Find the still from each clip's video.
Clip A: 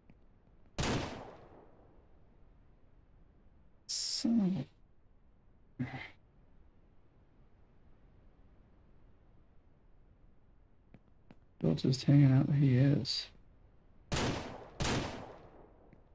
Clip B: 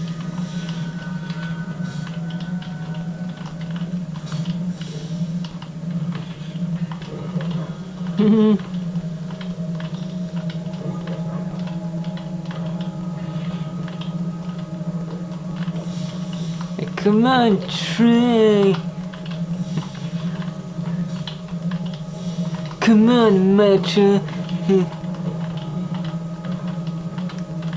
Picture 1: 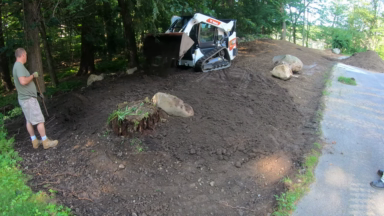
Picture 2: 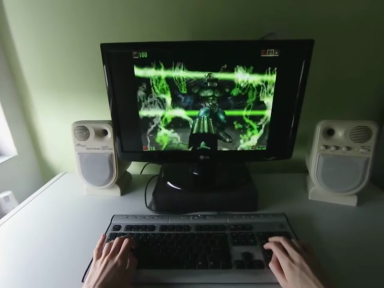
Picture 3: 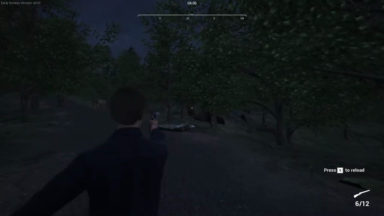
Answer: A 3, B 2